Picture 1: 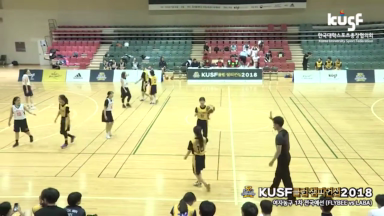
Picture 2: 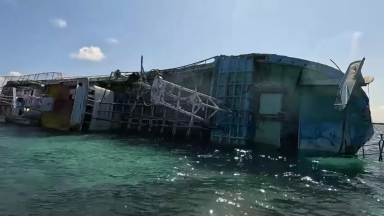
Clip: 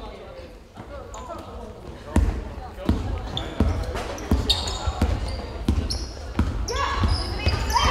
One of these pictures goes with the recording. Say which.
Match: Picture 1